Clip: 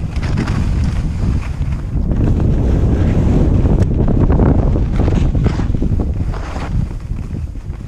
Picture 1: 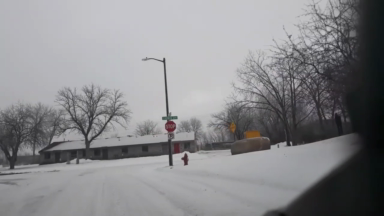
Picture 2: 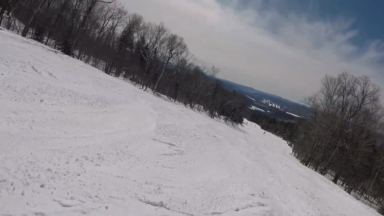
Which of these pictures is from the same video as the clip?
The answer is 2